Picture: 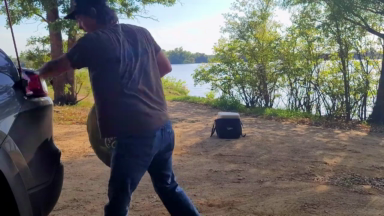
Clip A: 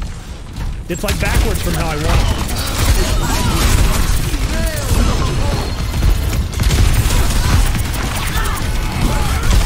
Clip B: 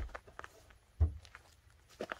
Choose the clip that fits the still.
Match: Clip B